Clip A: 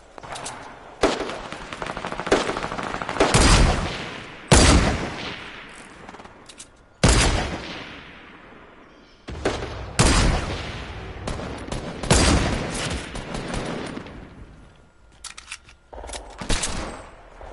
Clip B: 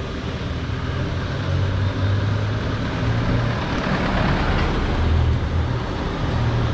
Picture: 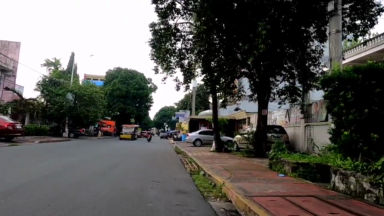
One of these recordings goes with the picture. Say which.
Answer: B